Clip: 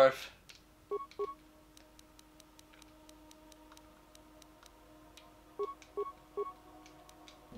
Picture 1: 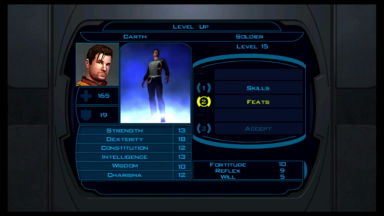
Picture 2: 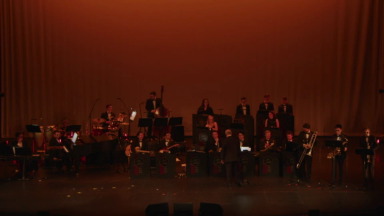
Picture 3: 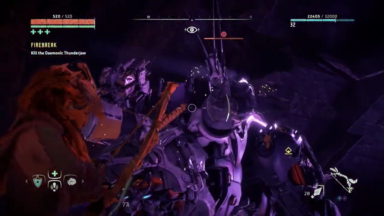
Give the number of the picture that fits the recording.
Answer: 1